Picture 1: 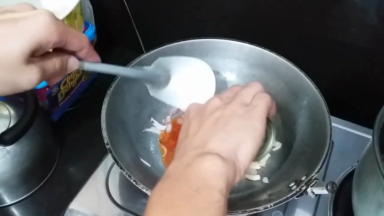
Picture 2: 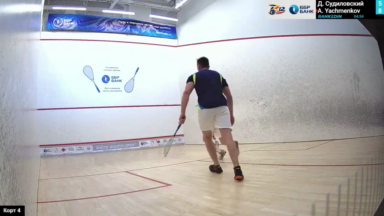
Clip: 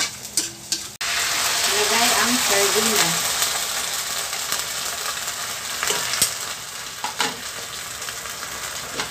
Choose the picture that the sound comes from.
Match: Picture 1